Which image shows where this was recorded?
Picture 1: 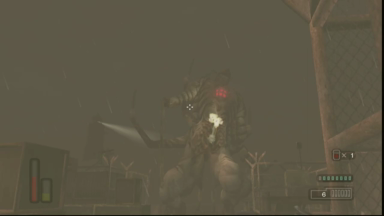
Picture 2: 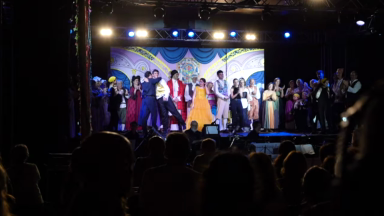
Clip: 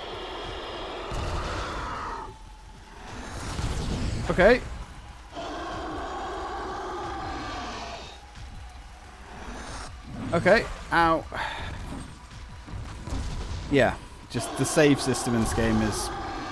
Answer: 1